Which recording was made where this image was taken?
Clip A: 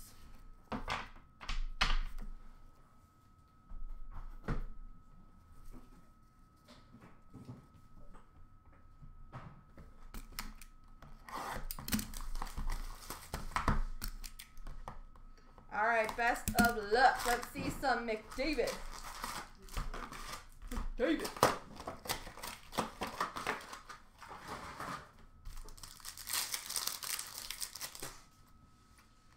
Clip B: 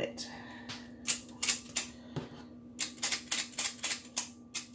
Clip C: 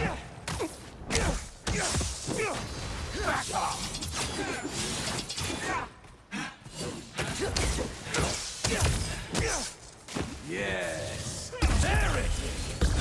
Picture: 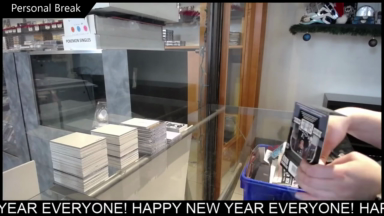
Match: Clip A